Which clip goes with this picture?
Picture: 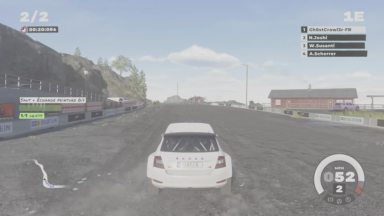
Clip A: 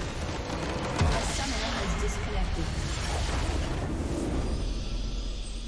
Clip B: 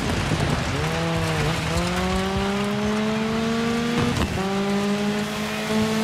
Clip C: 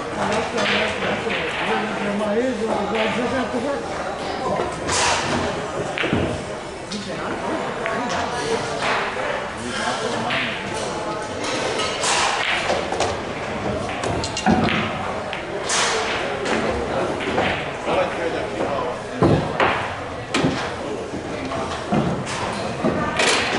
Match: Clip B